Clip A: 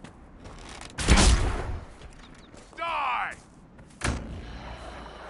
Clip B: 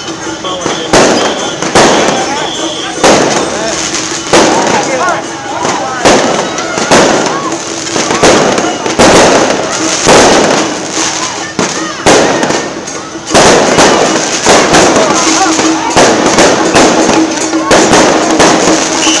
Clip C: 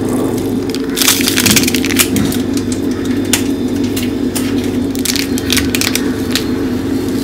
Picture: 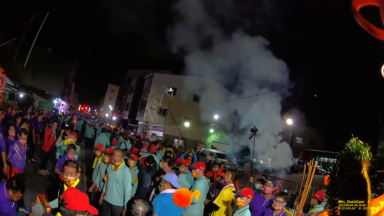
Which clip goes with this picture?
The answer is B